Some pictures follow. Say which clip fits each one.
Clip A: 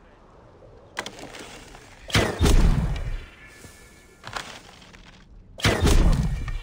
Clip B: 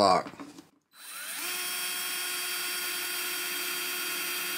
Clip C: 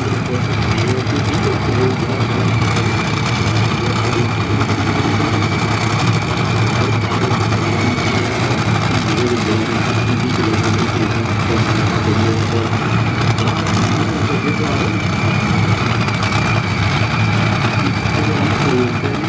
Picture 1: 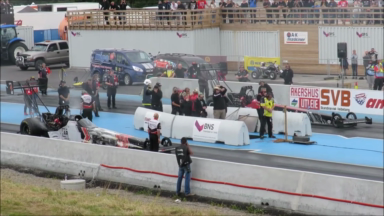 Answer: C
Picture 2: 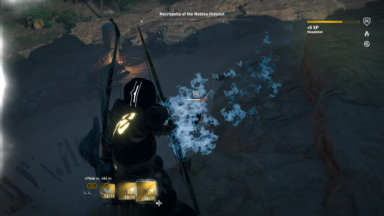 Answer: A